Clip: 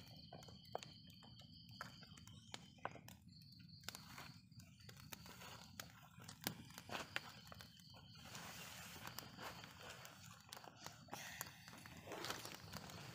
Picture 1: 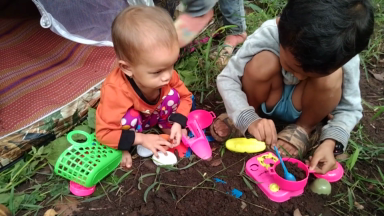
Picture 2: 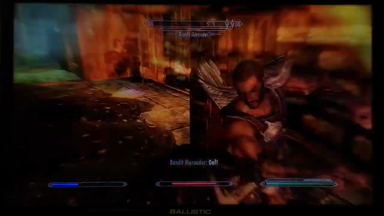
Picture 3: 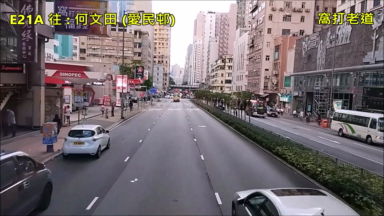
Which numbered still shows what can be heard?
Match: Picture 1